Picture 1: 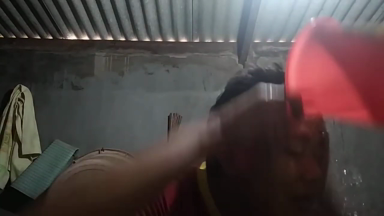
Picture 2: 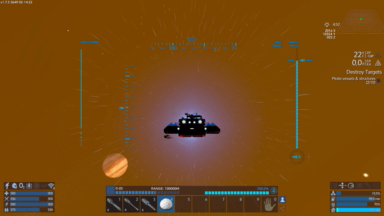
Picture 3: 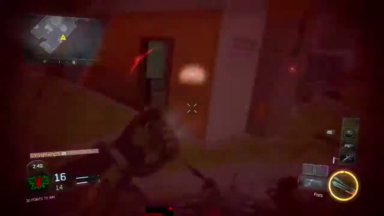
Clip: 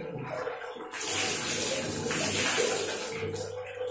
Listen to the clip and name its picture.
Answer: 1